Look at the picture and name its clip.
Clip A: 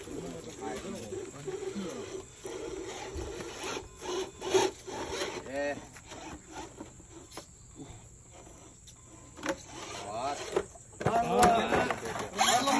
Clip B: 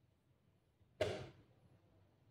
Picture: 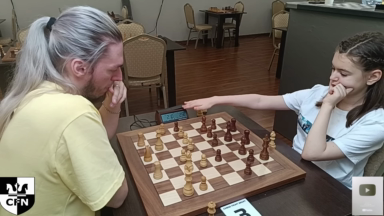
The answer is B